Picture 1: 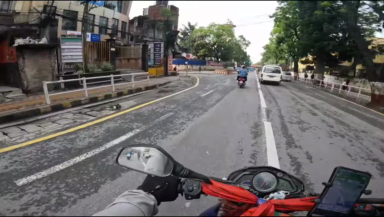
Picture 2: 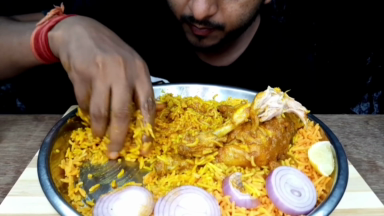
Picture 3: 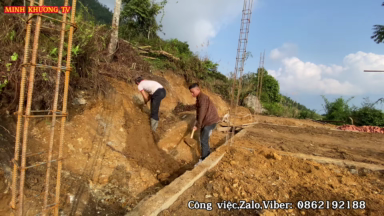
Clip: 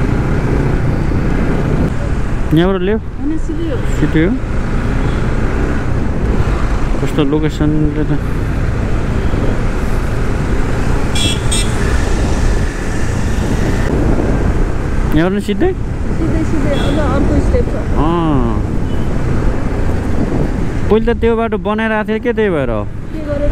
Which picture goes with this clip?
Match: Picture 1